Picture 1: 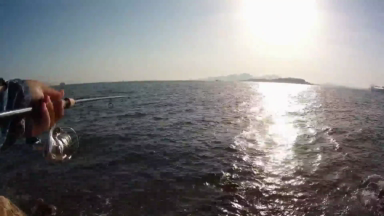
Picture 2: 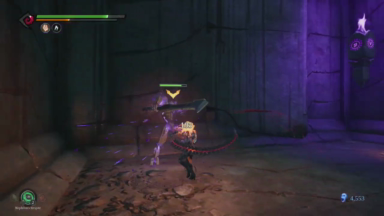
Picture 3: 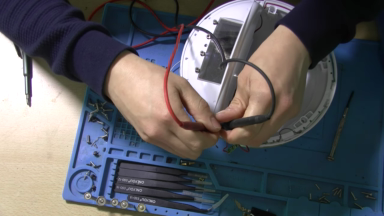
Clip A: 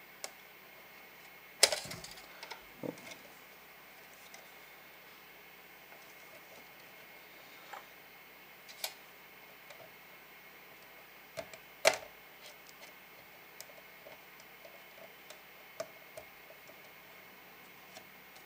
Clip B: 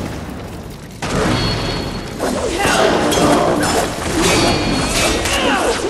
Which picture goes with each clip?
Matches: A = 3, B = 2